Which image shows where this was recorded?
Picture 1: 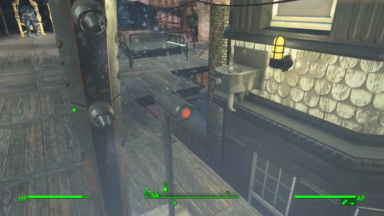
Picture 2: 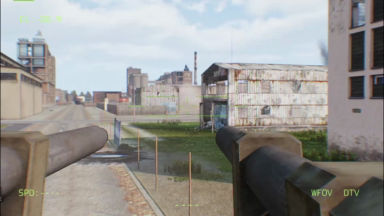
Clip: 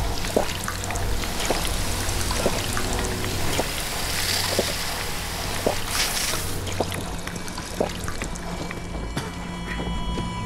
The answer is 1